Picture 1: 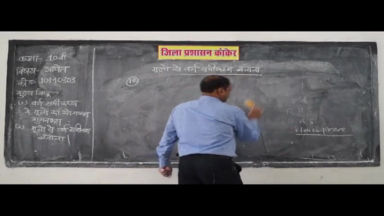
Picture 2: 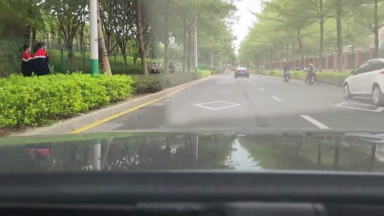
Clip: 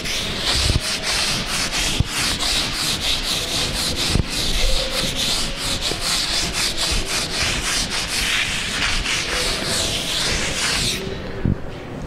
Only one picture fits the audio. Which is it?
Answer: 1